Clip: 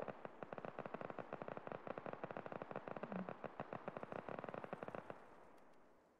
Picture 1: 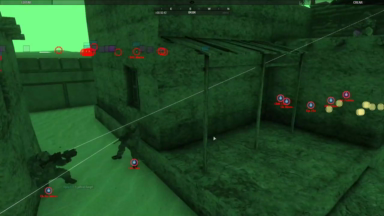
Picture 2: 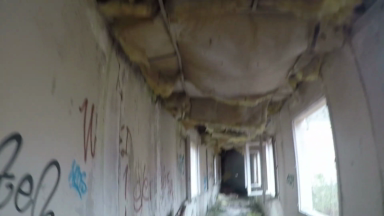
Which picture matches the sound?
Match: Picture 1